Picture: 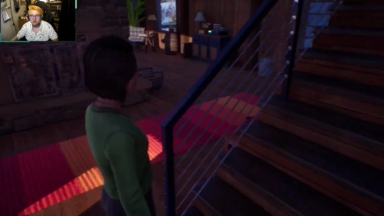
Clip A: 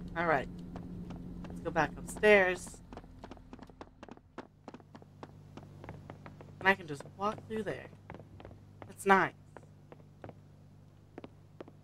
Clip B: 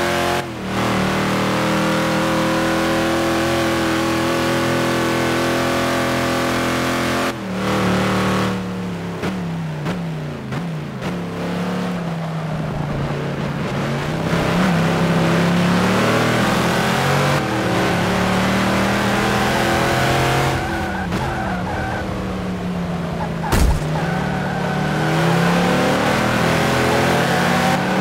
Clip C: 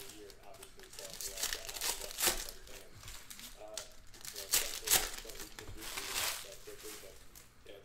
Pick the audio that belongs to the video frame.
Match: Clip A